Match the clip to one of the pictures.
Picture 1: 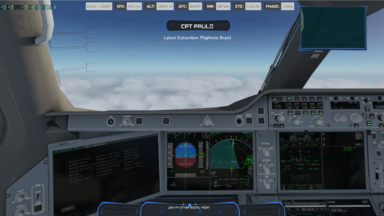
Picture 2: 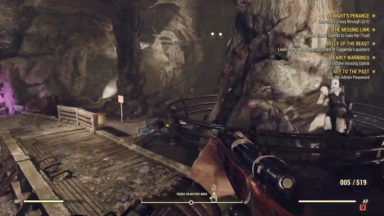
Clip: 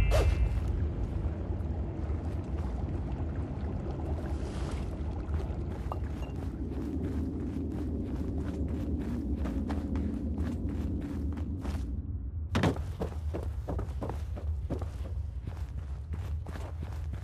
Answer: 2